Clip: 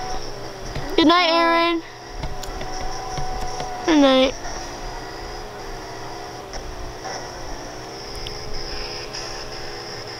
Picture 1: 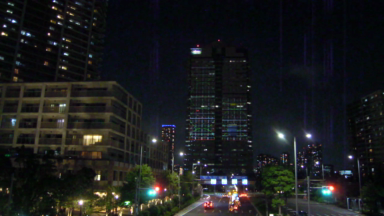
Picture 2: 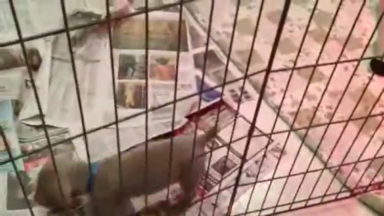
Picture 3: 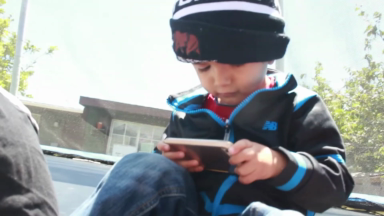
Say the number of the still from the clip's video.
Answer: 3